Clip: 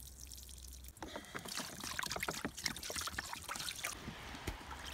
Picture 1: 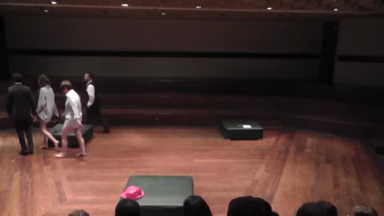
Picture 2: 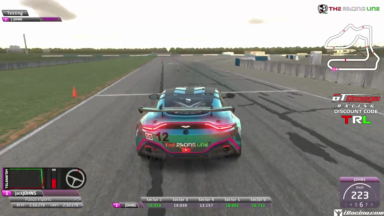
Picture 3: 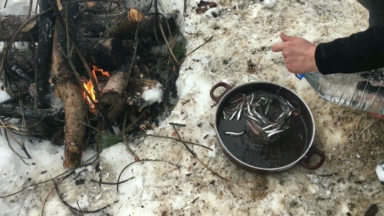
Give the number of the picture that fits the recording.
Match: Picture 3